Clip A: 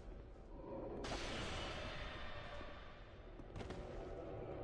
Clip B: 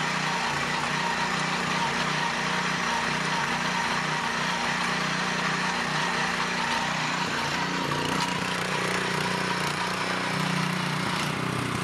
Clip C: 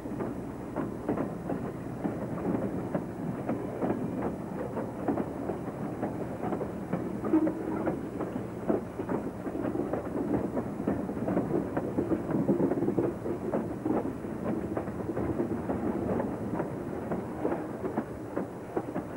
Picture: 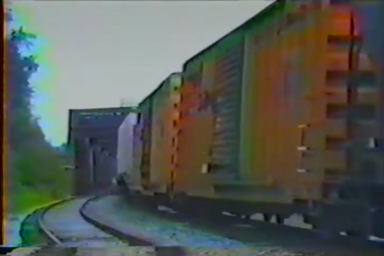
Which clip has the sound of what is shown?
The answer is C